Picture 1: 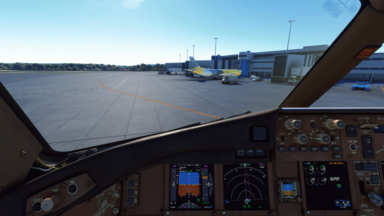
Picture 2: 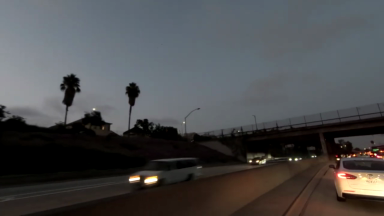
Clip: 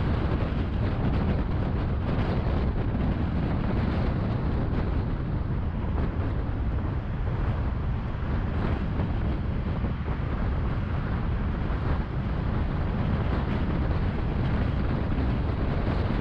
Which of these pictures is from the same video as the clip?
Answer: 2